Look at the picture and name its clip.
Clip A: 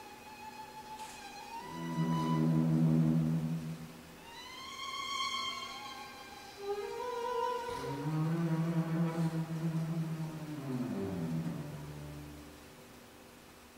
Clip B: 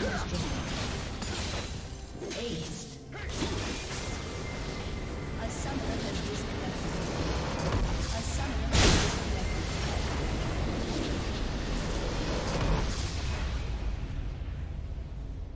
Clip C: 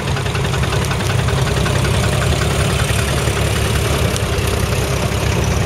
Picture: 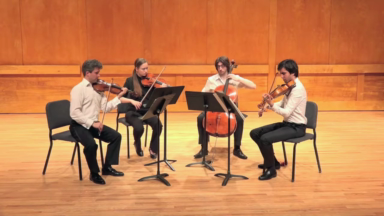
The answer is A